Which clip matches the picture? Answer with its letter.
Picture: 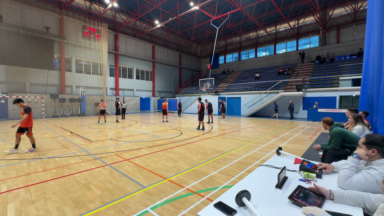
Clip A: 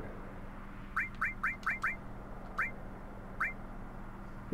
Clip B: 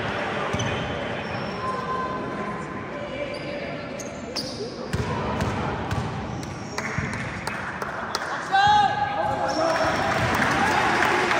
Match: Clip B